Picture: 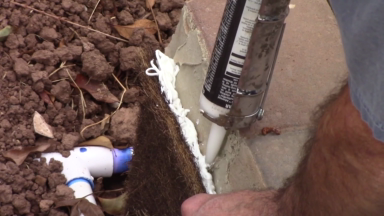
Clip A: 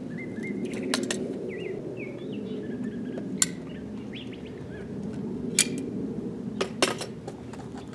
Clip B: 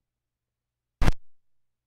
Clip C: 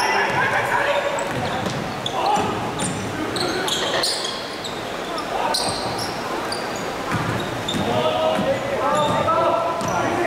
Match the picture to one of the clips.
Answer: A